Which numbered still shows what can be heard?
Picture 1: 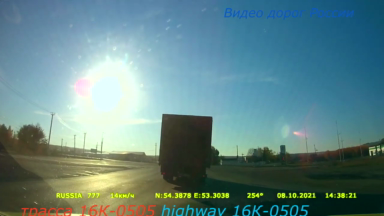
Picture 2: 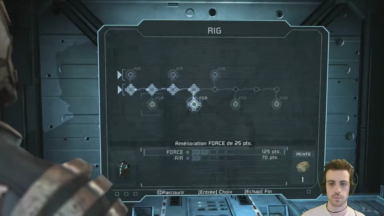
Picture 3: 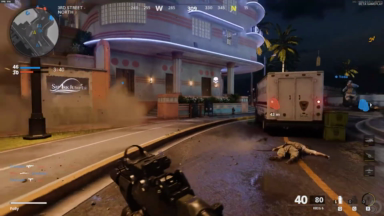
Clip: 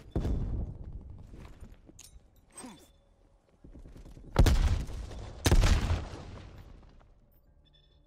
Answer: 3